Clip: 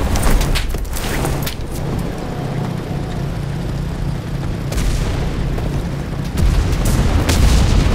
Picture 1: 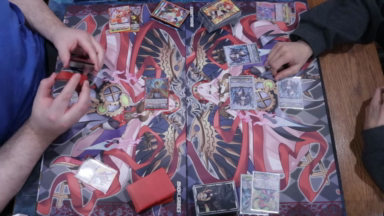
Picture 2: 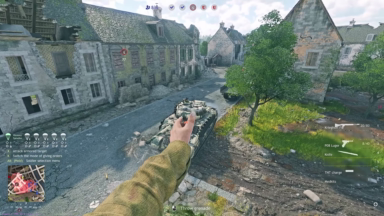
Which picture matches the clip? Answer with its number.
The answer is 2